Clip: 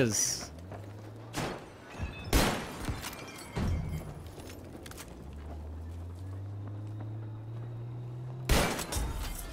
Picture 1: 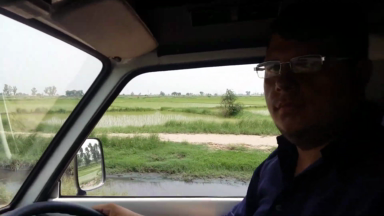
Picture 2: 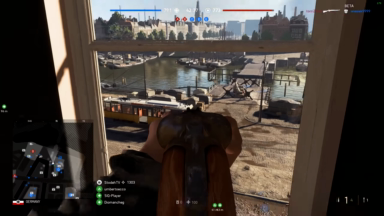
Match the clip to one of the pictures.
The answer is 2